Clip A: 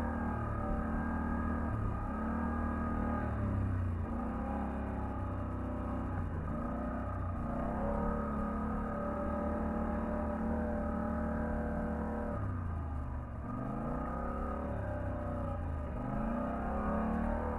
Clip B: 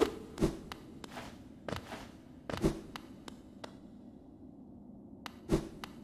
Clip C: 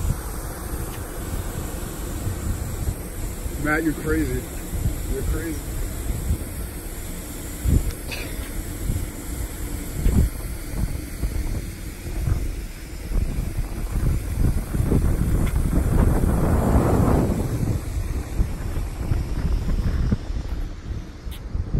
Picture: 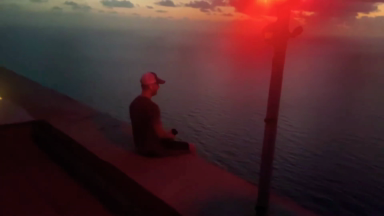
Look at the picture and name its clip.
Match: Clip C